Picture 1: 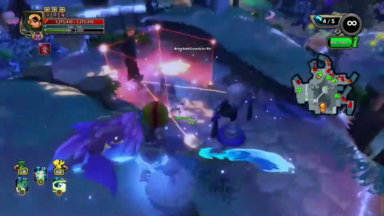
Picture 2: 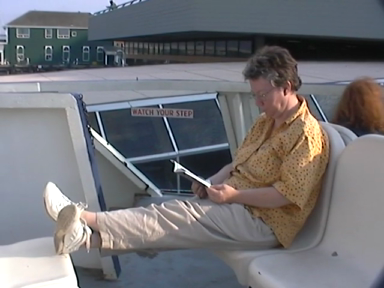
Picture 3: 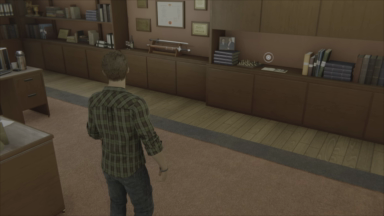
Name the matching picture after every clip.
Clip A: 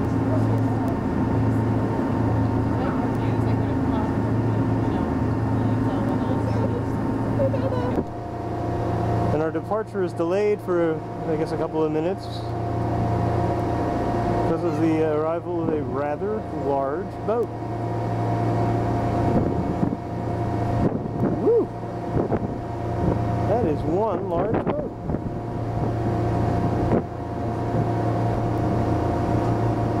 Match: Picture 2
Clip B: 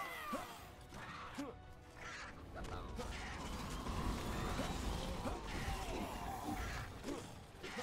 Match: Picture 1